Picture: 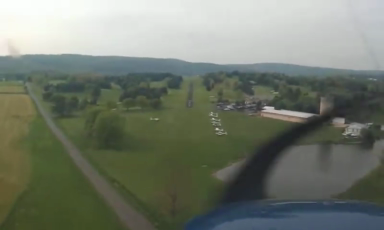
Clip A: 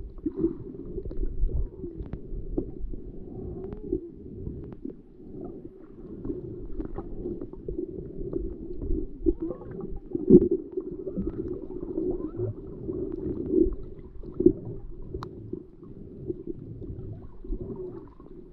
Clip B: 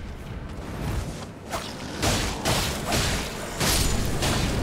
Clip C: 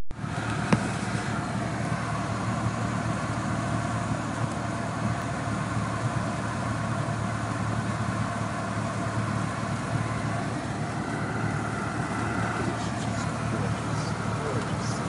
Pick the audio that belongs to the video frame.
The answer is C